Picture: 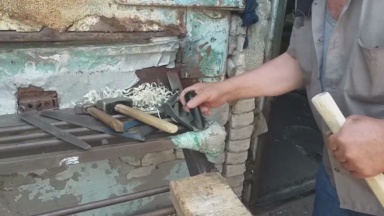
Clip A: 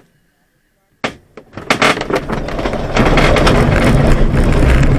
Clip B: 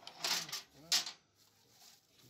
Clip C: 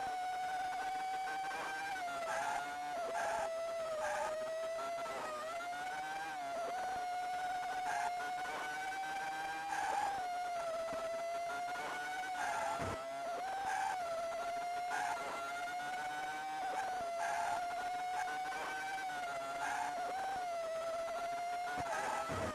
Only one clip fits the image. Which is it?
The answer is B